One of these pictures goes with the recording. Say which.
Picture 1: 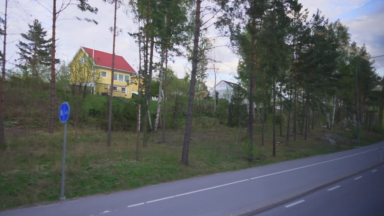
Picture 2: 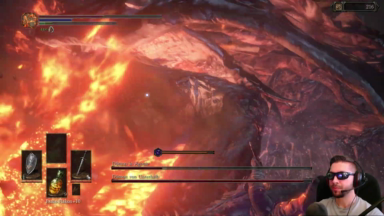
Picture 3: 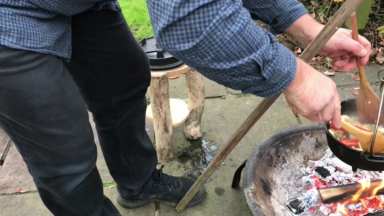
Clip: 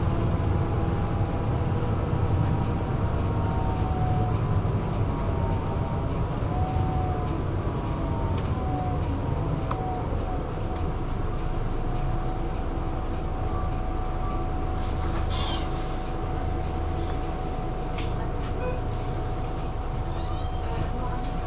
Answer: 1